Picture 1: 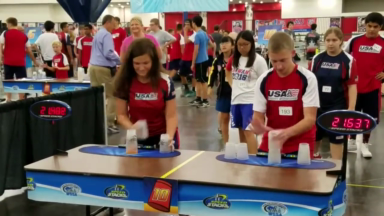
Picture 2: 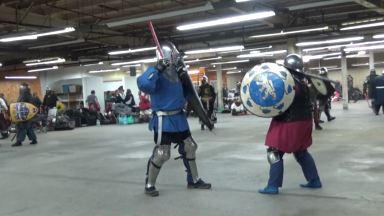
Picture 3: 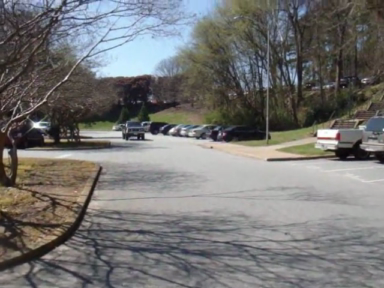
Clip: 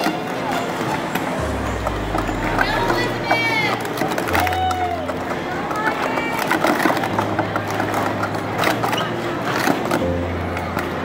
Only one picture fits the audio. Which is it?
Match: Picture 1